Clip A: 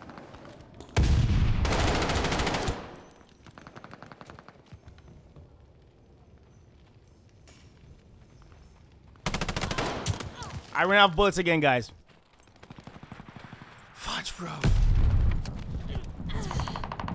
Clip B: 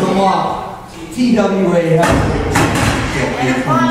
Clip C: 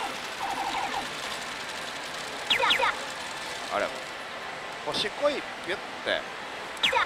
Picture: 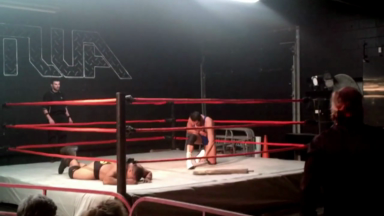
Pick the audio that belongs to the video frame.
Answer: B